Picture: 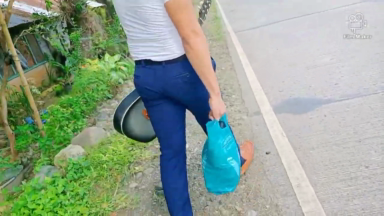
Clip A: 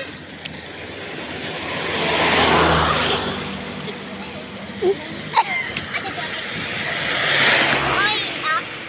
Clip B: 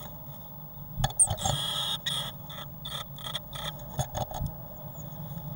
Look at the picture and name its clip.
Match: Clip A